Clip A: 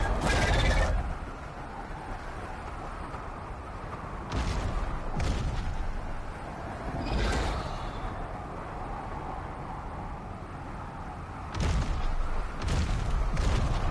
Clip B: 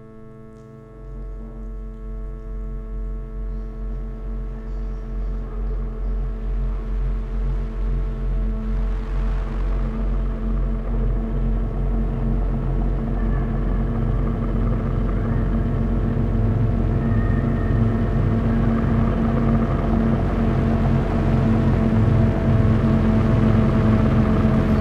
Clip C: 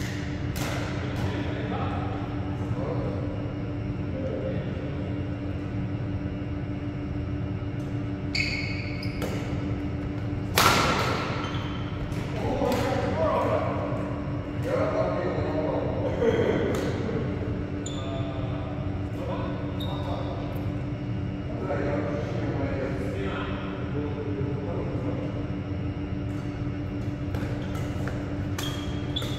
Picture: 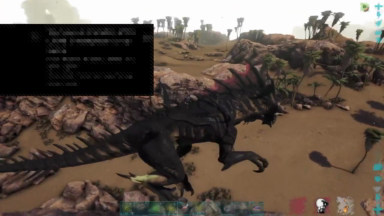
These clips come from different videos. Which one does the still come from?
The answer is A